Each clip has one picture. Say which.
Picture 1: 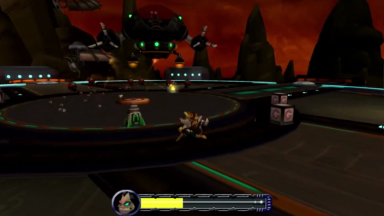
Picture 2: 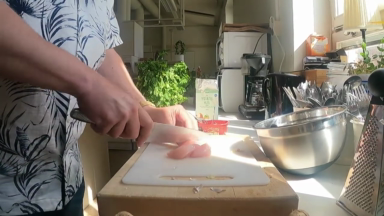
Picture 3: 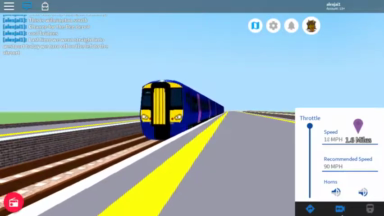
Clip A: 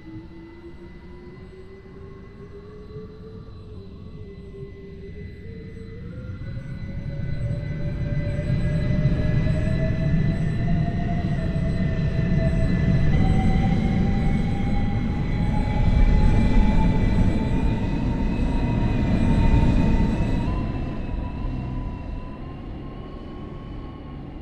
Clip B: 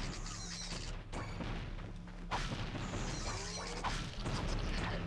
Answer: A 3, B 1